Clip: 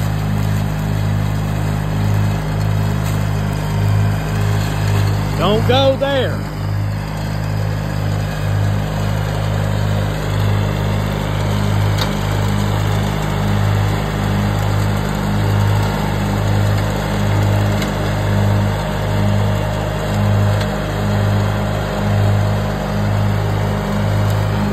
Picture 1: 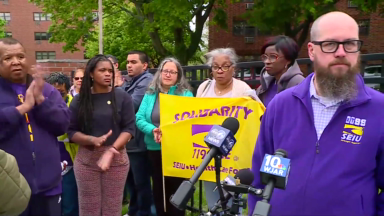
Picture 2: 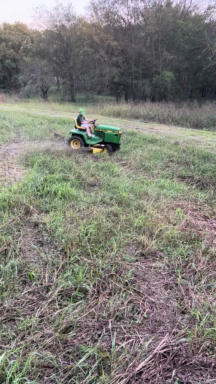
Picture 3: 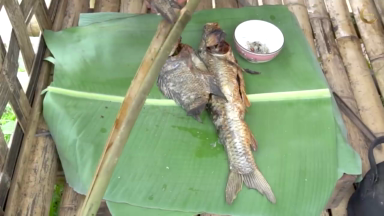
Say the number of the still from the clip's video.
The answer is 2